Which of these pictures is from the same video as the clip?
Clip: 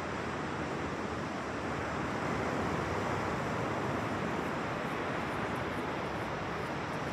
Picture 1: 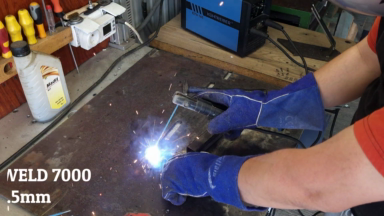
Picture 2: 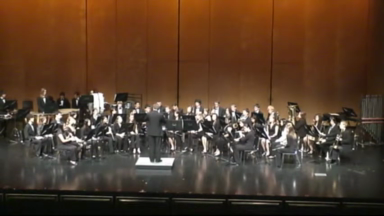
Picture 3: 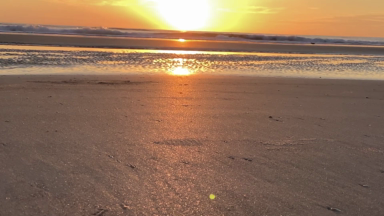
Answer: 3